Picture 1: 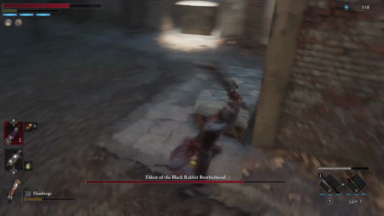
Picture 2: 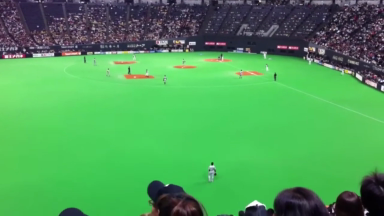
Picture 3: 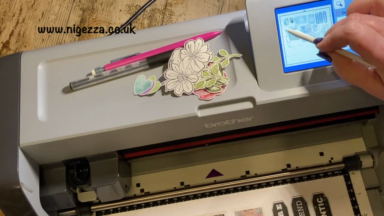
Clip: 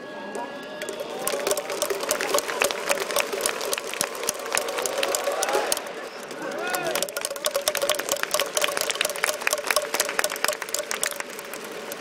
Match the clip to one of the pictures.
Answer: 2